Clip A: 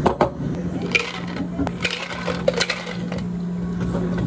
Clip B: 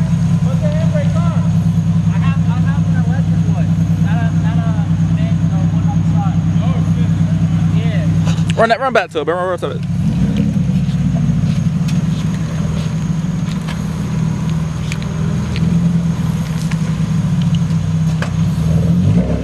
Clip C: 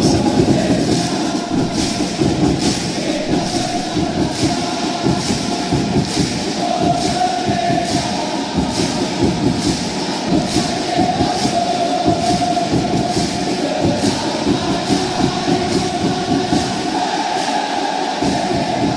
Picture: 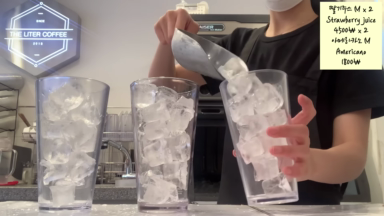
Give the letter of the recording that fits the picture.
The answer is A